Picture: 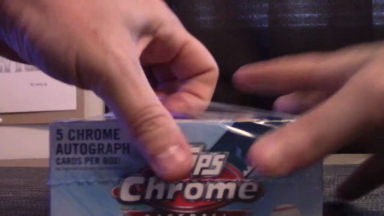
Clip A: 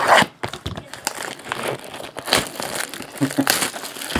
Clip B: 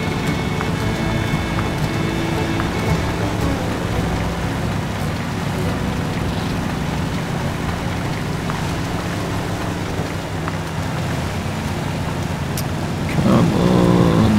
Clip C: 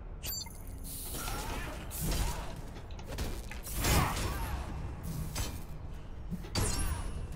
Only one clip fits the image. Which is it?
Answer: A